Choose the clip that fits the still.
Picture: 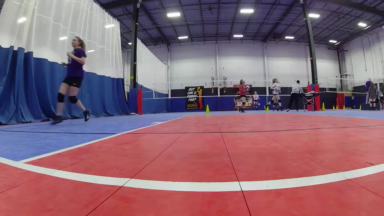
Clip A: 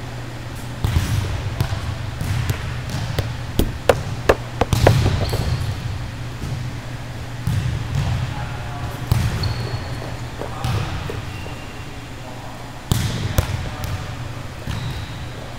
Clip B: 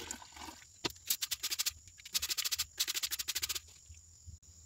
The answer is A